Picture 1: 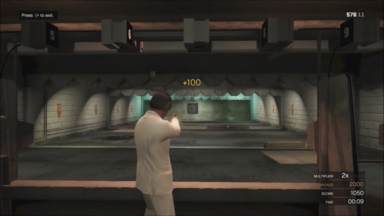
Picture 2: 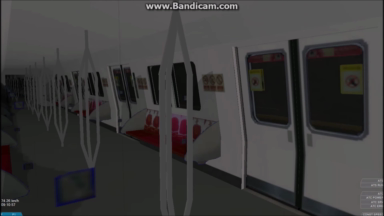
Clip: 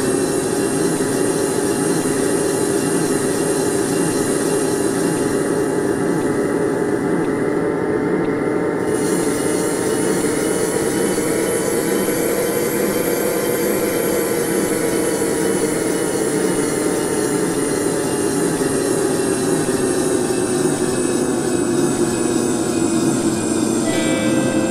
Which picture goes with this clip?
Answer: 2